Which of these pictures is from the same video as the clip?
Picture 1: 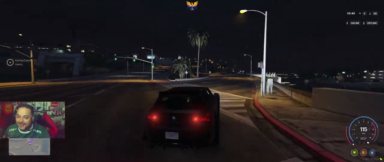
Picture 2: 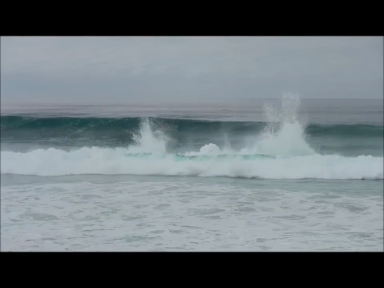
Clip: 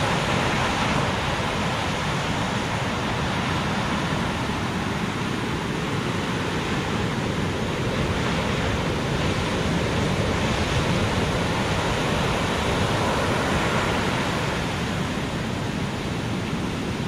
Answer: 2